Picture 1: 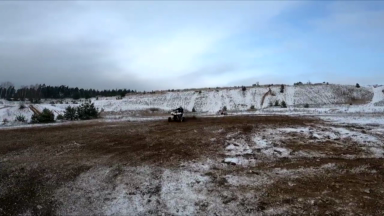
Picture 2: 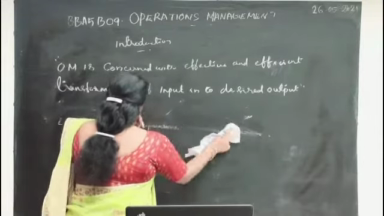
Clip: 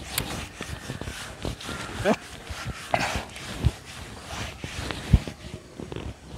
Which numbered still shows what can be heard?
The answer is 2